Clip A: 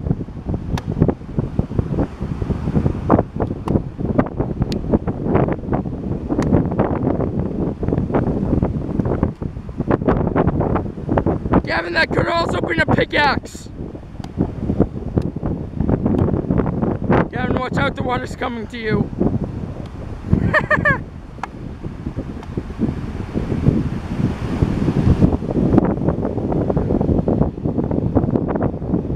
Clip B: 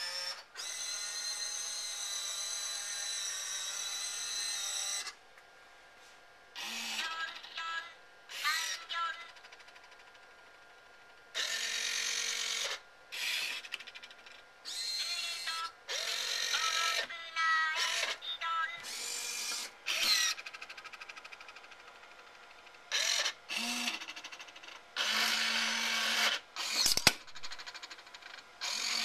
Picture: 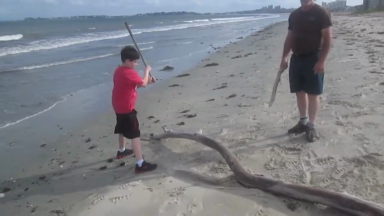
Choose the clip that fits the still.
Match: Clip A